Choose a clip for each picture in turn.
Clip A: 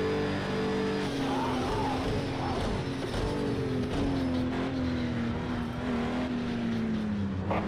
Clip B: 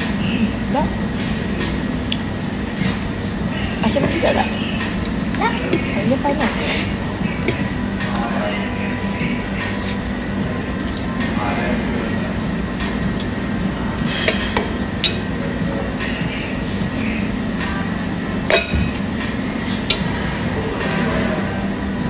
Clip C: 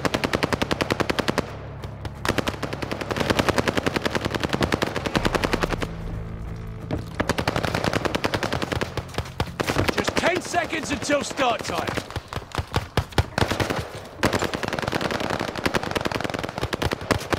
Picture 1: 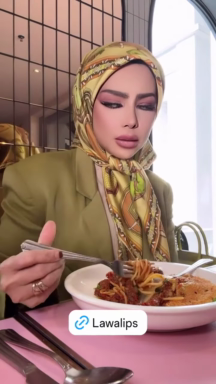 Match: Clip B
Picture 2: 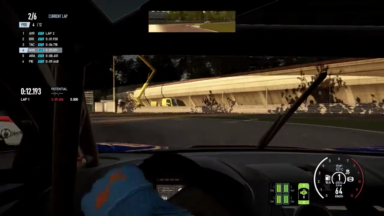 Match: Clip A